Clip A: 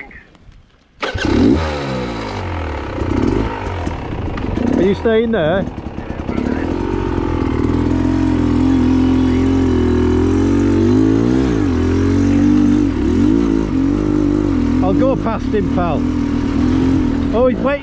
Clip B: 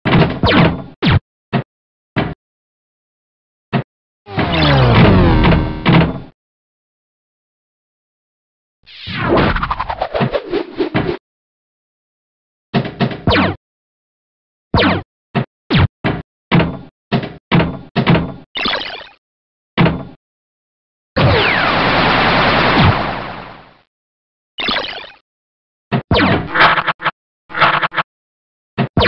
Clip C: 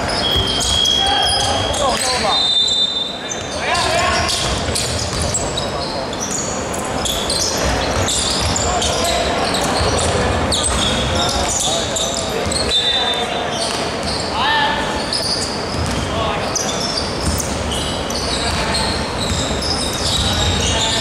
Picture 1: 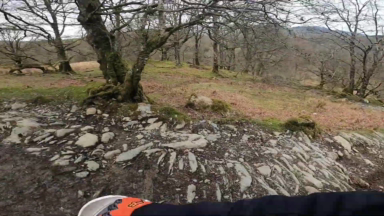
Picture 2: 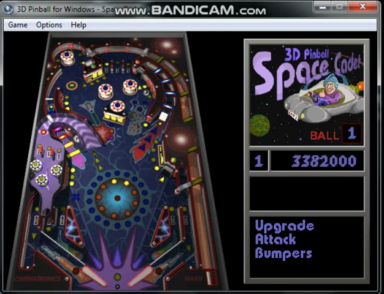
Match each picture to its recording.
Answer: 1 A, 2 B